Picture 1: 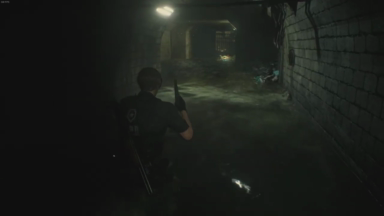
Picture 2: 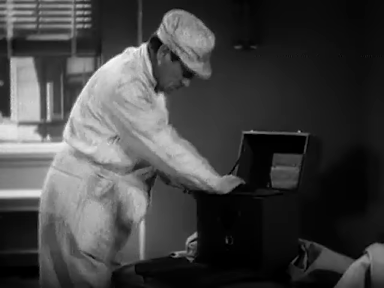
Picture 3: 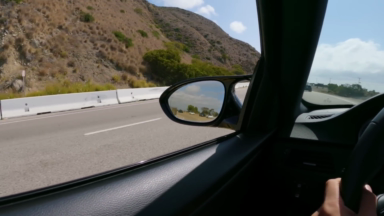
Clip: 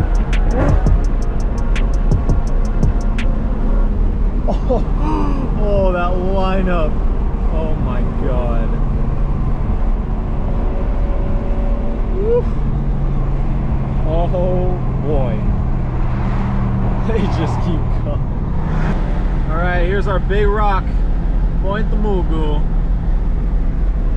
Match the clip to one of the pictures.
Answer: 3